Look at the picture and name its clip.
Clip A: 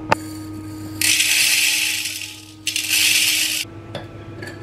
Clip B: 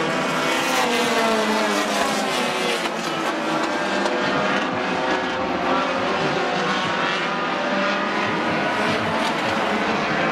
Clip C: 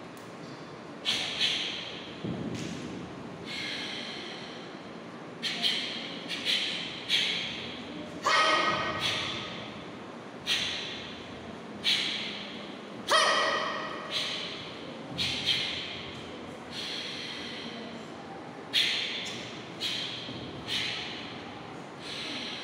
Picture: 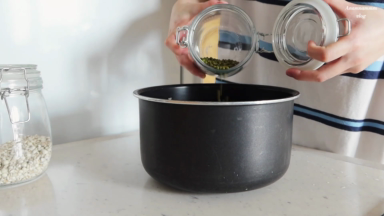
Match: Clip A